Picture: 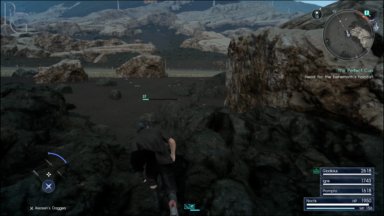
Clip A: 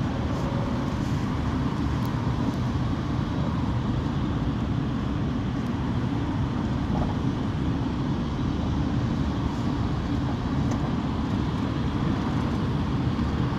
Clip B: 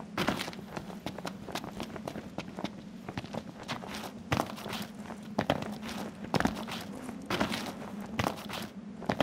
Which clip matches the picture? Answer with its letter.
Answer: B